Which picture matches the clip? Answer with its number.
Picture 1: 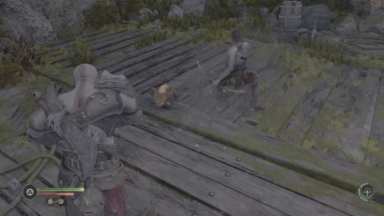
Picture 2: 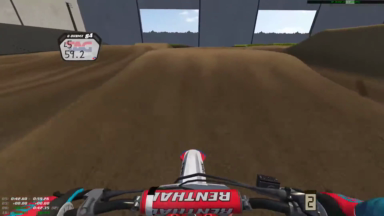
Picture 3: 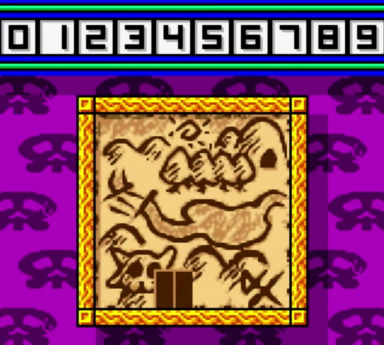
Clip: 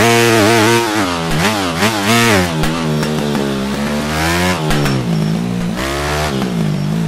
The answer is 2